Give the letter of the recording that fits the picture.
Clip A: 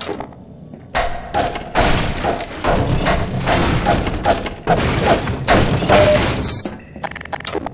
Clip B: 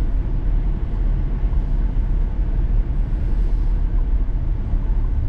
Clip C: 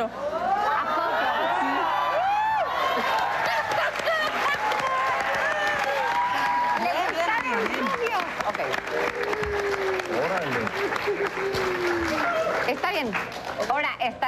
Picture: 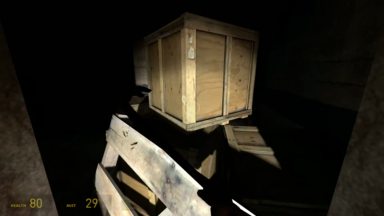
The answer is A